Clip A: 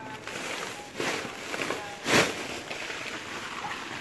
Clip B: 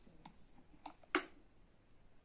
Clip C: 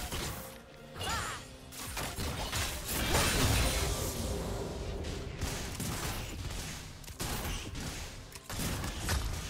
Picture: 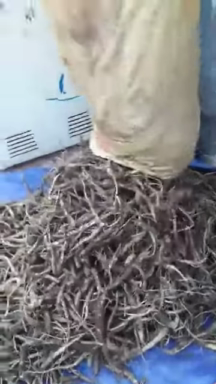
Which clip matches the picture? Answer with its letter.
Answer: A